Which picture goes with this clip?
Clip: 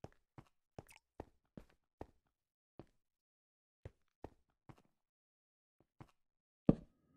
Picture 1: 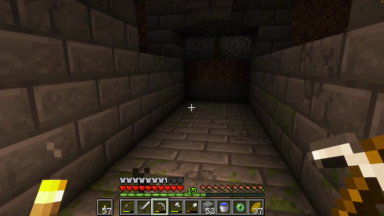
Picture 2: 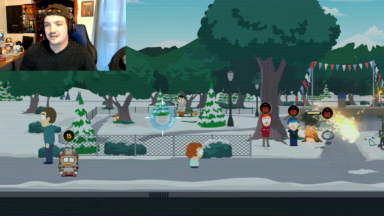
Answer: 1